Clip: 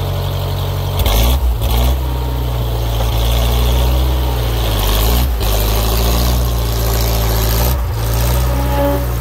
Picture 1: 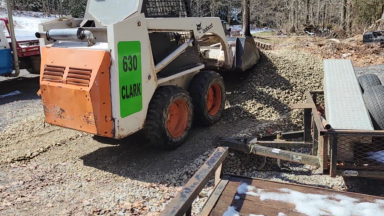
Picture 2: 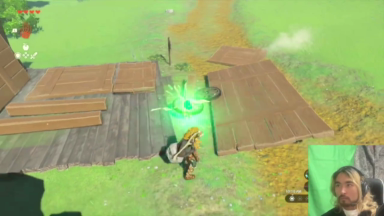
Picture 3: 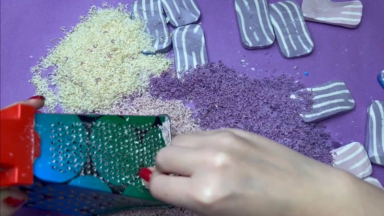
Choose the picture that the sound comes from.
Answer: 1